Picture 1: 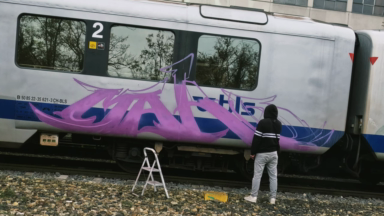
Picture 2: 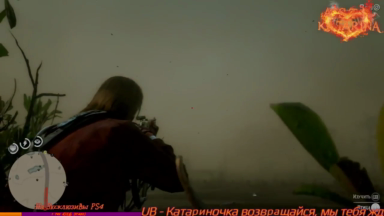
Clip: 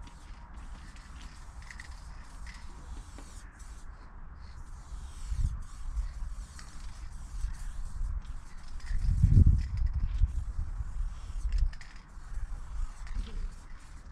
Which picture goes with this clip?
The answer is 1